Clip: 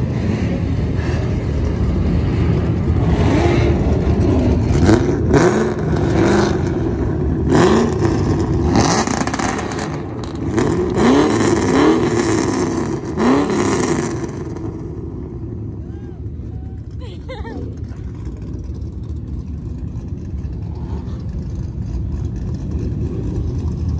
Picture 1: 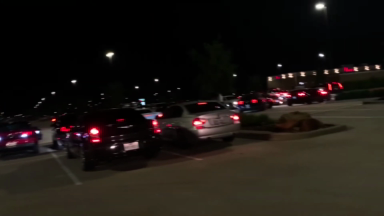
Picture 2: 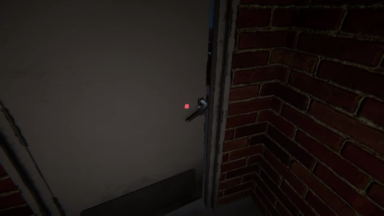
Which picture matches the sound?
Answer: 1